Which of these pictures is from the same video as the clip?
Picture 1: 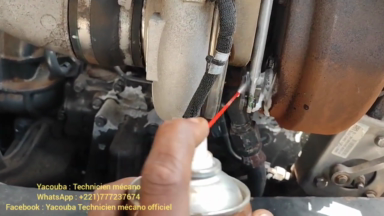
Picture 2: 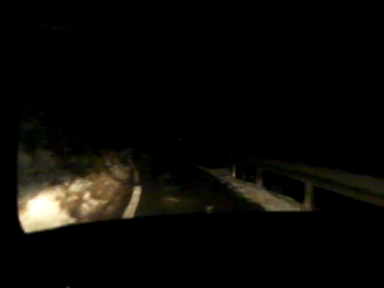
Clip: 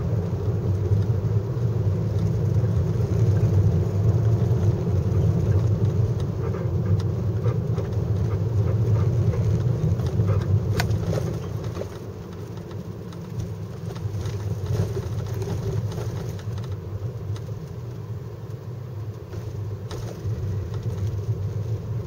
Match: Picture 2